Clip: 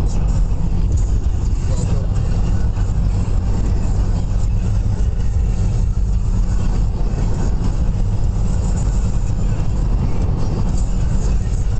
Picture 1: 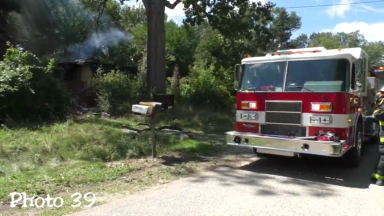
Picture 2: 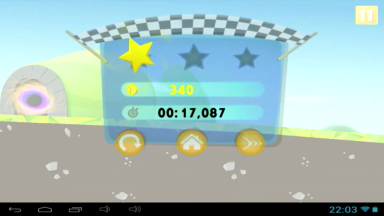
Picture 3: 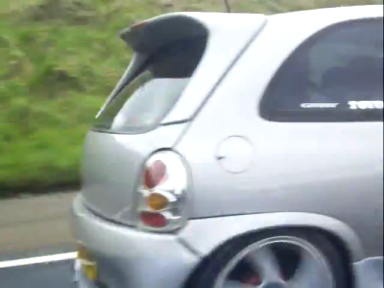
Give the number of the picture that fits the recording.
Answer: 3